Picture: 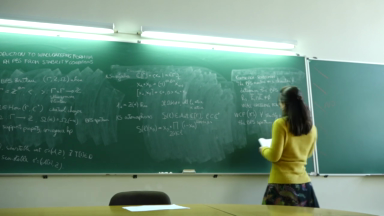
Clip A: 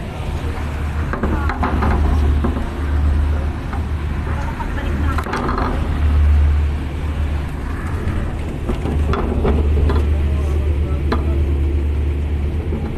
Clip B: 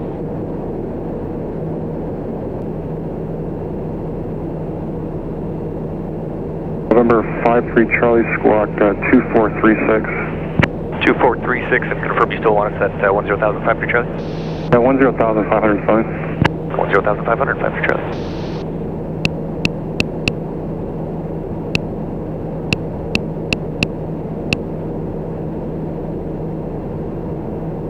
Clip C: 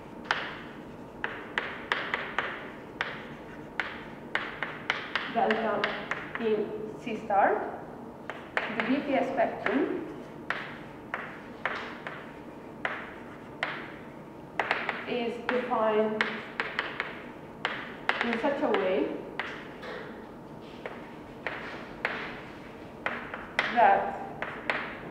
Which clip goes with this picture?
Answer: C